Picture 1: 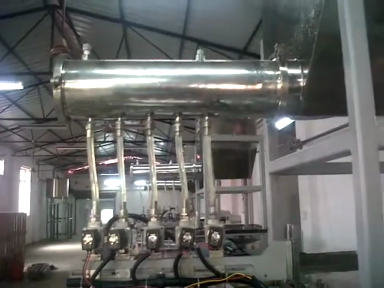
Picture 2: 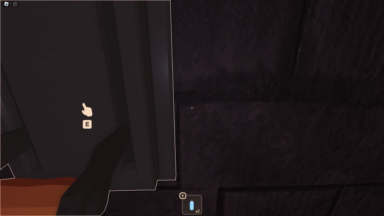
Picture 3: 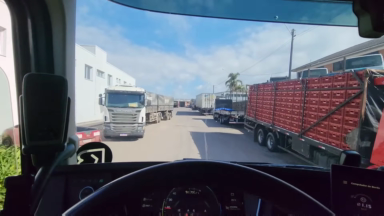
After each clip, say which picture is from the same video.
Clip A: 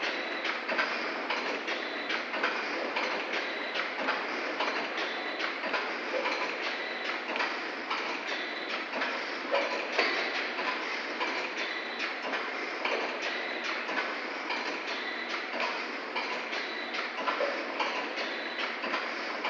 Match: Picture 1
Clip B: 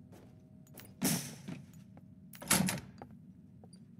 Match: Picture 2